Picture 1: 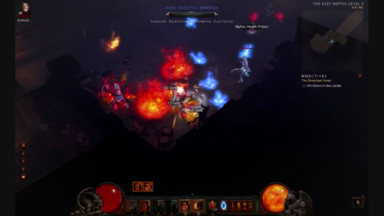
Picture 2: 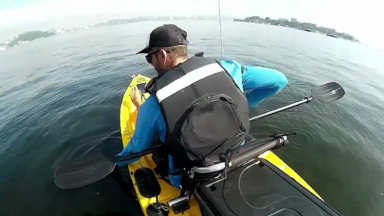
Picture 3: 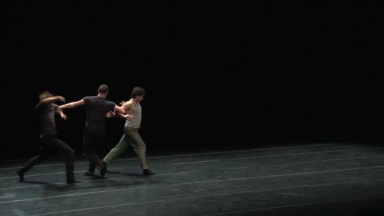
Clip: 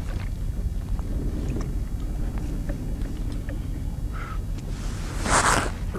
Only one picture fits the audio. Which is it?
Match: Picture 2